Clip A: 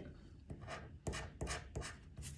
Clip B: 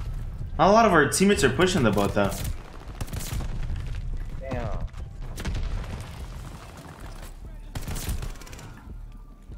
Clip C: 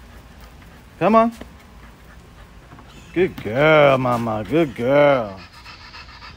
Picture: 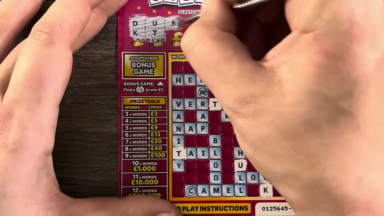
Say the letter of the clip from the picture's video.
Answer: A